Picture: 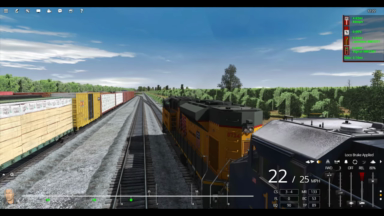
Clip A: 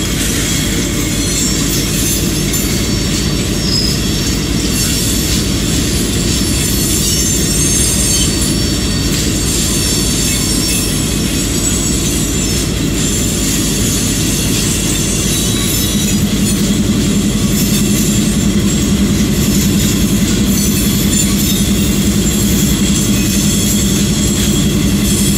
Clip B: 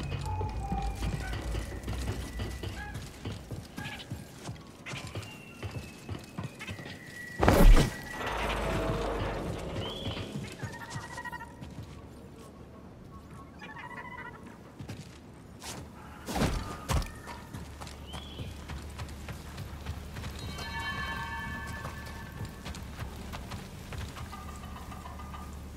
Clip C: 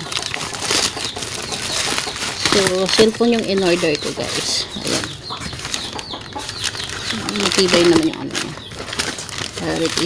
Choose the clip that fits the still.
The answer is A